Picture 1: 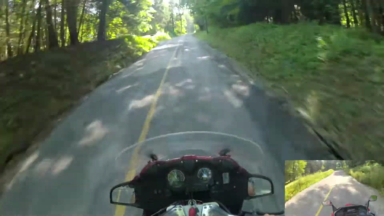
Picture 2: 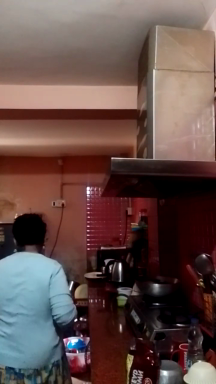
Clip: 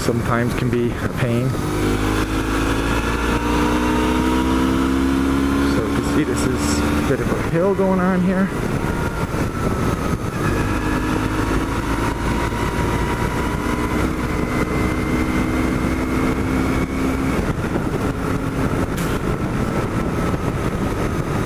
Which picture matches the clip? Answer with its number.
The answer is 1